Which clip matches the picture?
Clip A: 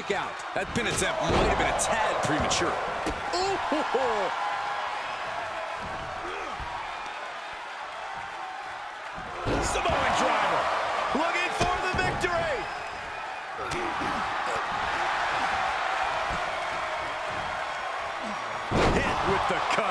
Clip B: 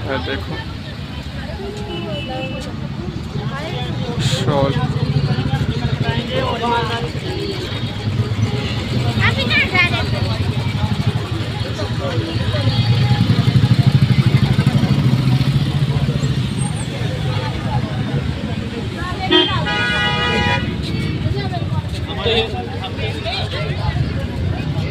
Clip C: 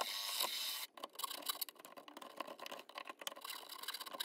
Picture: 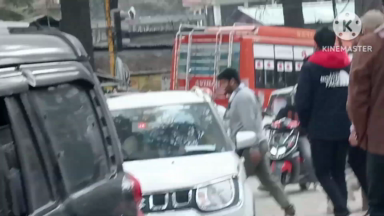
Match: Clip B